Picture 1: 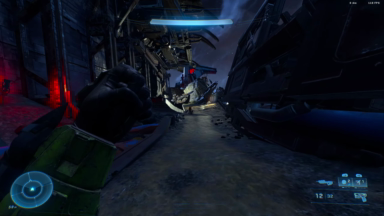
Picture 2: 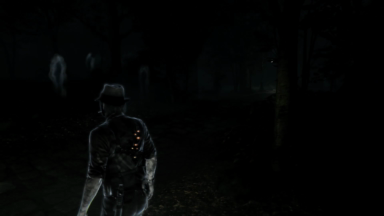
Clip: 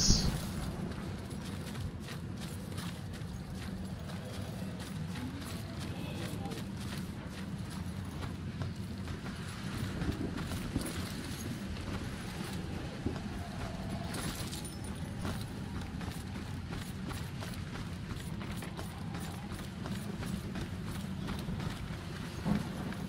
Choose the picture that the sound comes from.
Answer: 2